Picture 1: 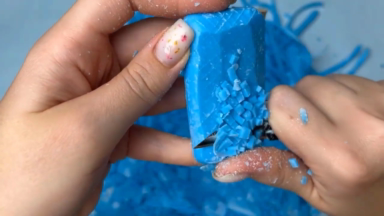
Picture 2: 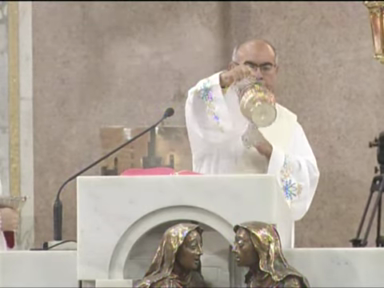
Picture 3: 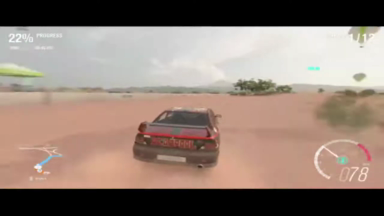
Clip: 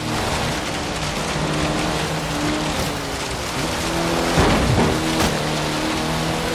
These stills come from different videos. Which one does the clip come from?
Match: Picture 3